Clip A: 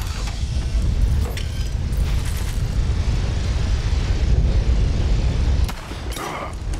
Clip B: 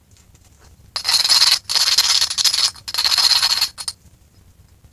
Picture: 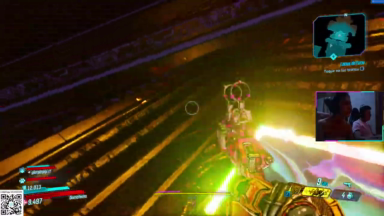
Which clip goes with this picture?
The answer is A